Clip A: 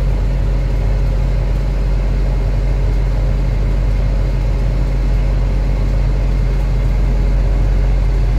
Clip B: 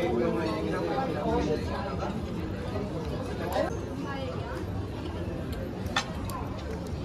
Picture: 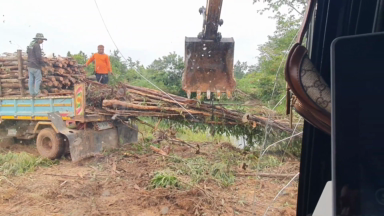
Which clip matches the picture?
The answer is A